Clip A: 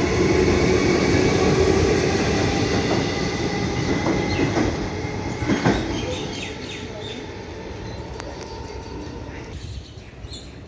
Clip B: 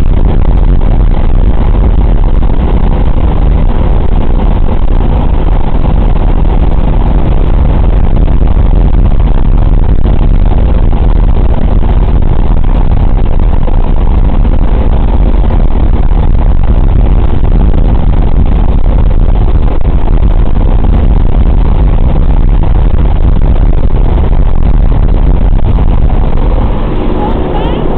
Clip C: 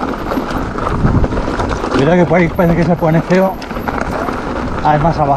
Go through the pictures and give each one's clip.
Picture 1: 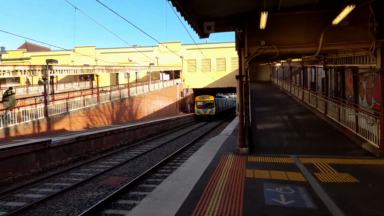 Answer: A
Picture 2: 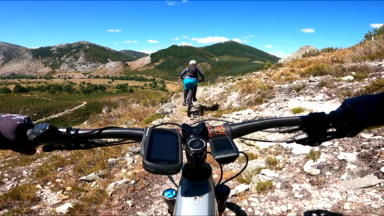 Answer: C